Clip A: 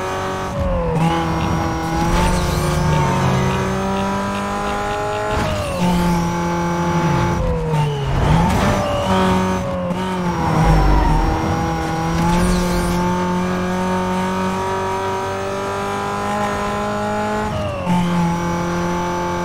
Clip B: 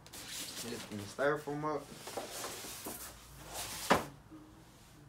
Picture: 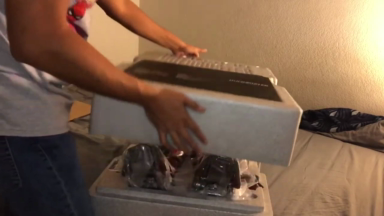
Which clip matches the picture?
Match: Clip B